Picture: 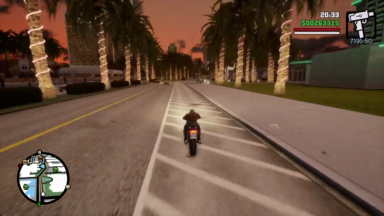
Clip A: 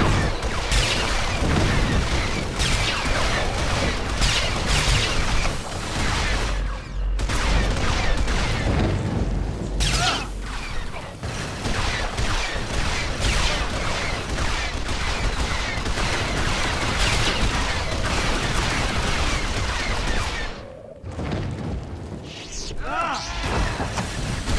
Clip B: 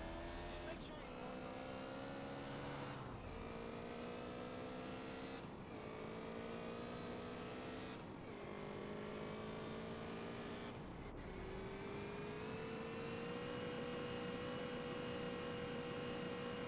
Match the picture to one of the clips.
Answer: B